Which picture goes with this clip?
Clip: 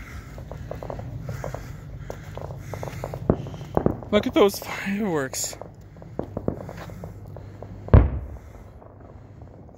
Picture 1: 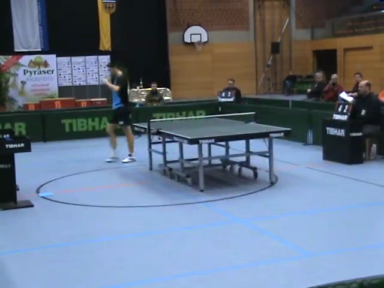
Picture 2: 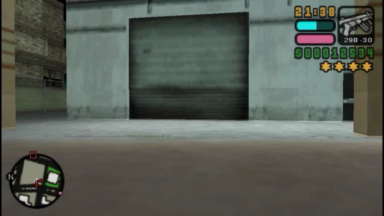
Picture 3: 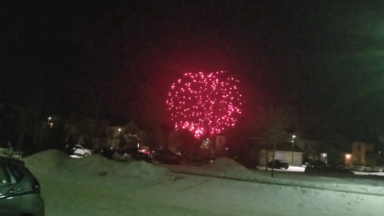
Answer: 3